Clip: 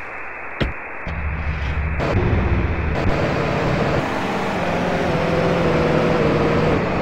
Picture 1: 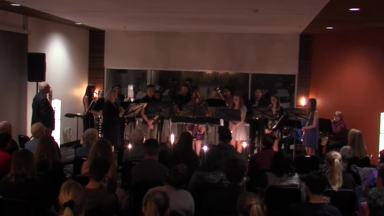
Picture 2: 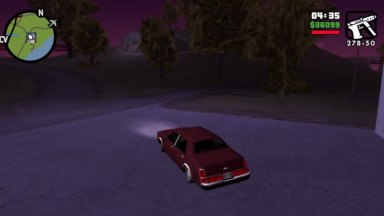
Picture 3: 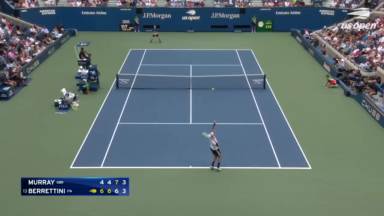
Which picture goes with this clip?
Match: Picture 2